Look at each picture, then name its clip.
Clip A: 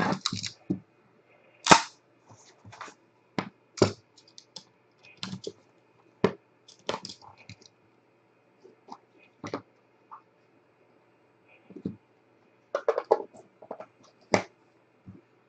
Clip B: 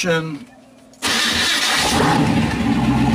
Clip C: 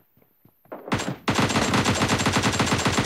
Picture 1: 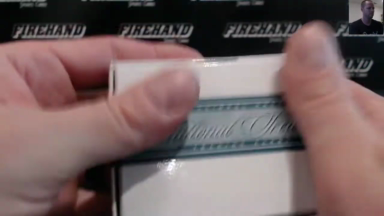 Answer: A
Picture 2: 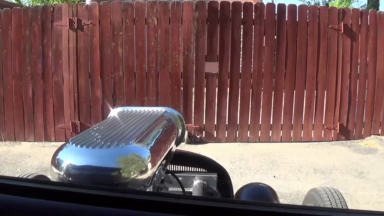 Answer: B